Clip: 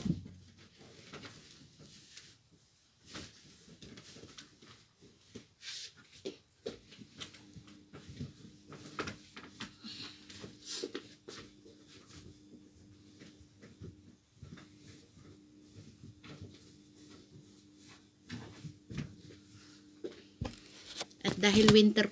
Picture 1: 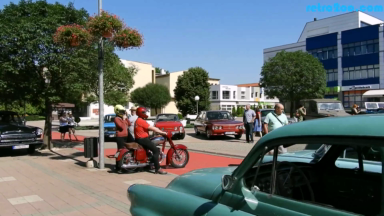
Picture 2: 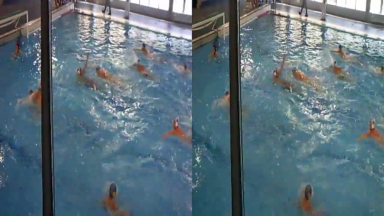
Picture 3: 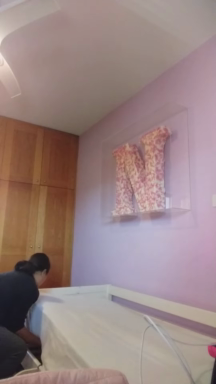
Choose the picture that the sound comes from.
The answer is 3